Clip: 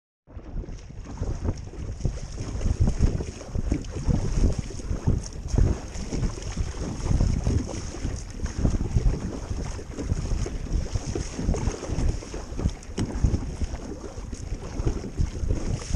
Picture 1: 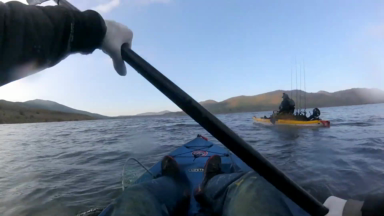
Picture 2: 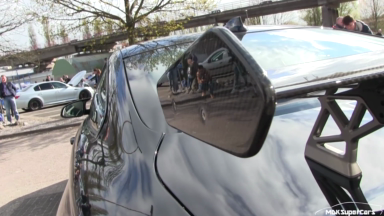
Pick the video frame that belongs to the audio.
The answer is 1